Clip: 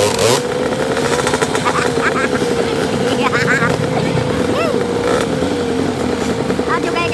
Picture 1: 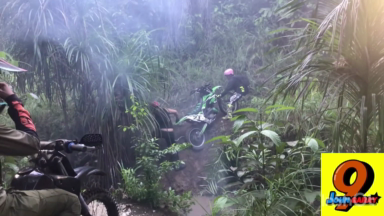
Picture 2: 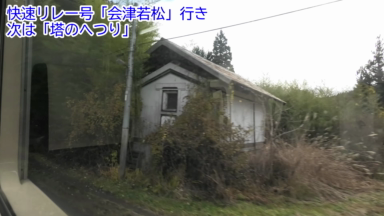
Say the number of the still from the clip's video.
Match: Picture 1